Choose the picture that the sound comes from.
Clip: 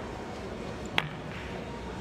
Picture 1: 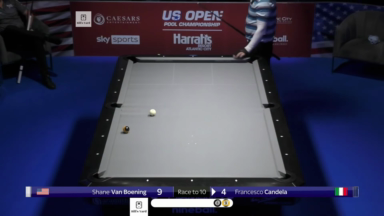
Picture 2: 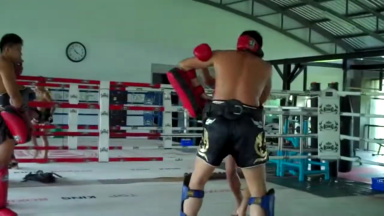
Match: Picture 1